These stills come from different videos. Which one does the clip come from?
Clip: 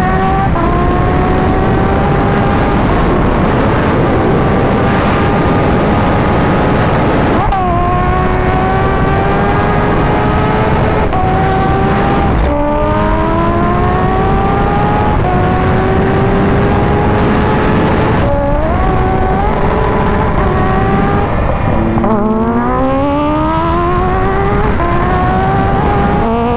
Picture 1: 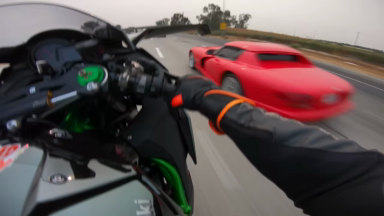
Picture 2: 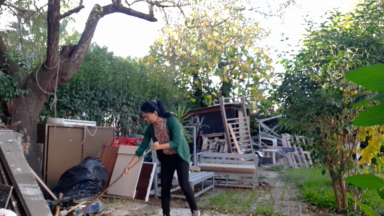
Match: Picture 1